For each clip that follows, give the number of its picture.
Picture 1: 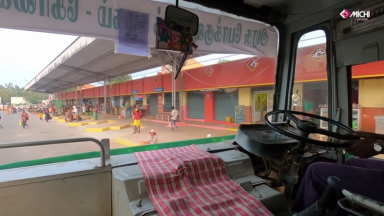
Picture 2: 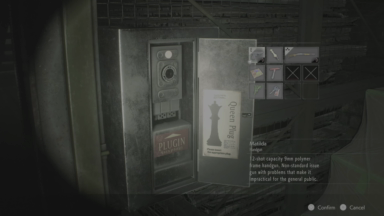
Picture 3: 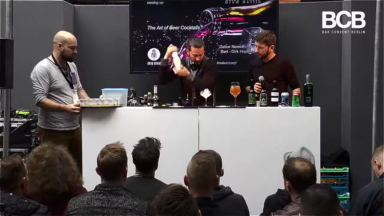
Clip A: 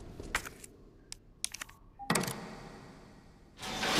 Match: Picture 2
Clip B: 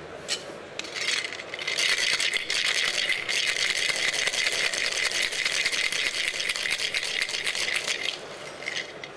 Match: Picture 3